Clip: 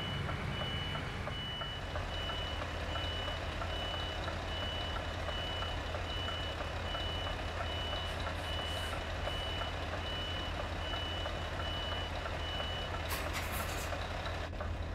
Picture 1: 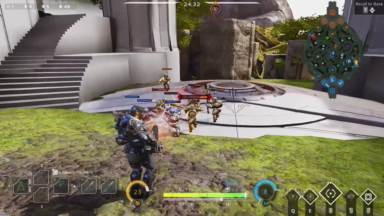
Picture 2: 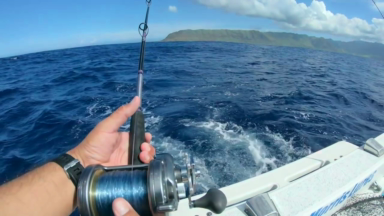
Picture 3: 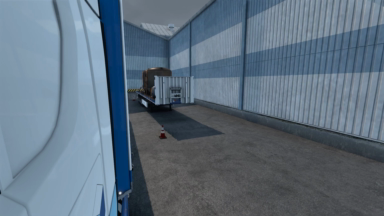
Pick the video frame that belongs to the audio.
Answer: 3